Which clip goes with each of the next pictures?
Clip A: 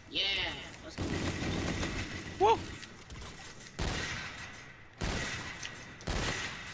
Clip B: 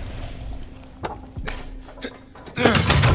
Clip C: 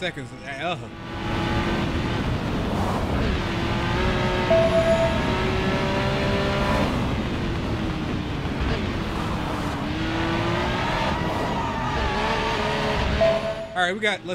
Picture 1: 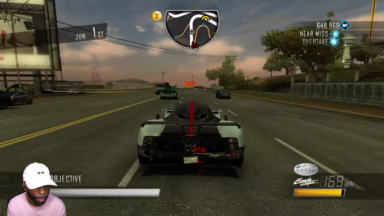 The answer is C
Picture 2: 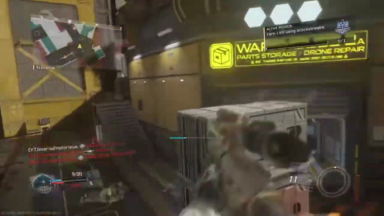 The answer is A